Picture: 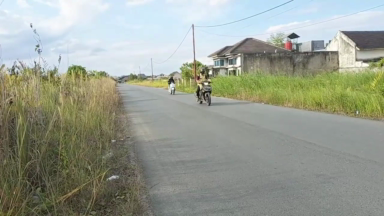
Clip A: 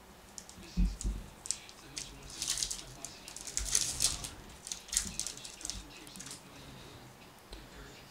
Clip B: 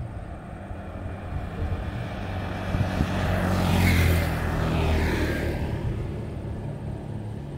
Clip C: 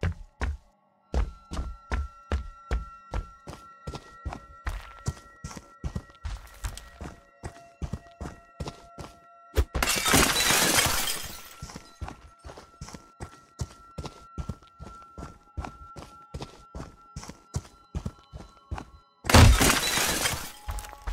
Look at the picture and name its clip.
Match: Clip B